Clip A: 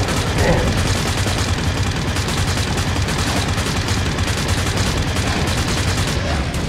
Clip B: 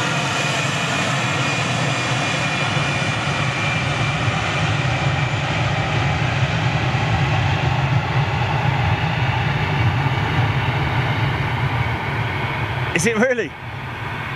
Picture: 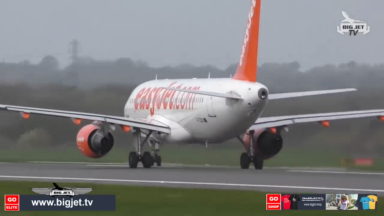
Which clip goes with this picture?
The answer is B